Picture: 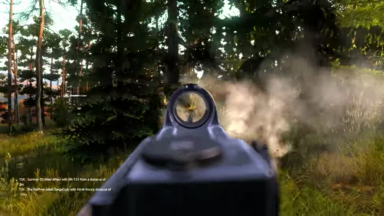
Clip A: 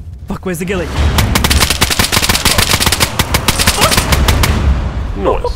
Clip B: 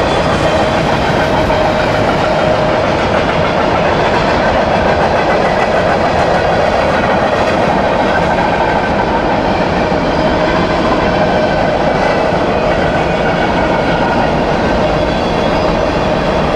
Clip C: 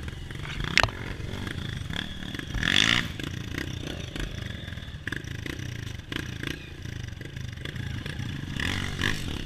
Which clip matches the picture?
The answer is A